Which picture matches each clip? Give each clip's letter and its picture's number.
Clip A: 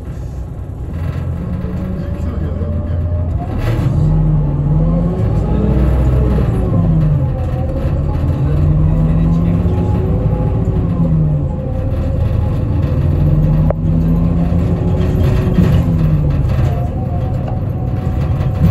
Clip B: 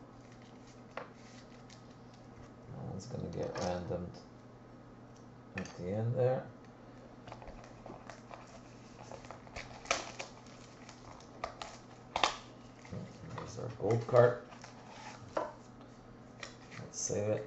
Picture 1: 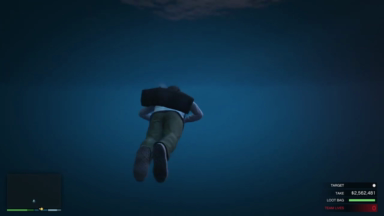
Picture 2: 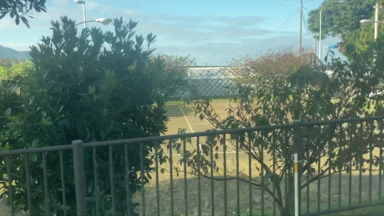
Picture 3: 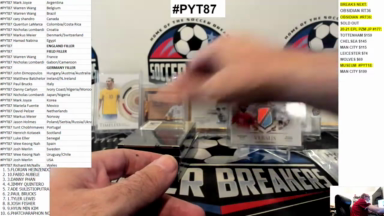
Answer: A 2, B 3